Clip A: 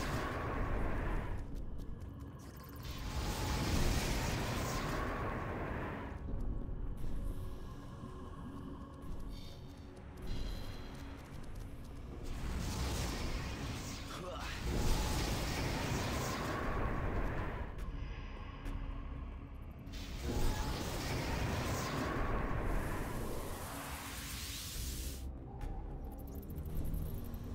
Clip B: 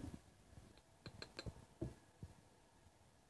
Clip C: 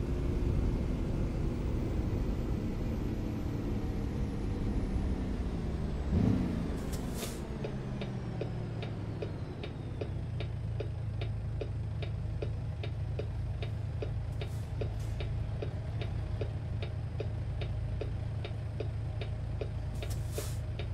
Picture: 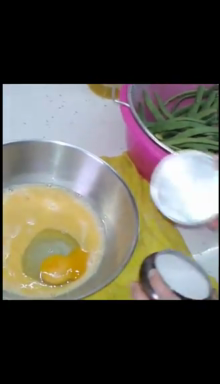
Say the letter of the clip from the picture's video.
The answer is B